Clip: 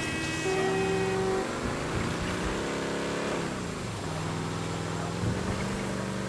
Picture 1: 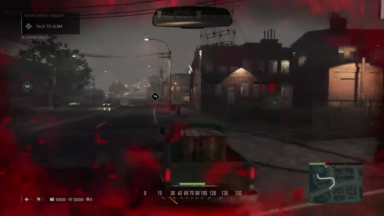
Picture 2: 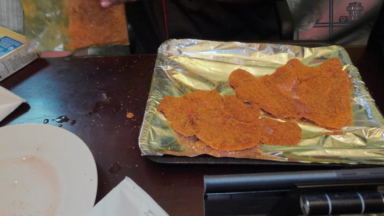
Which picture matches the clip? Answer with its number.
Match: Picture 1